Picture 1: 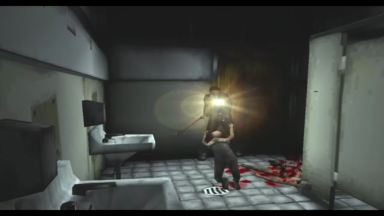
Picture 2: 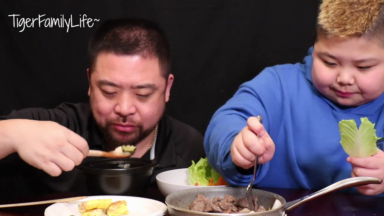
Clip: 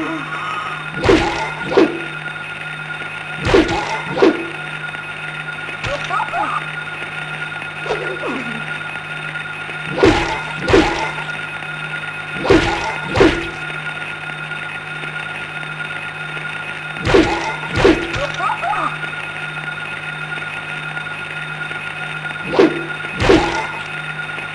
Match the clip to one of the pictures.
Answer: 1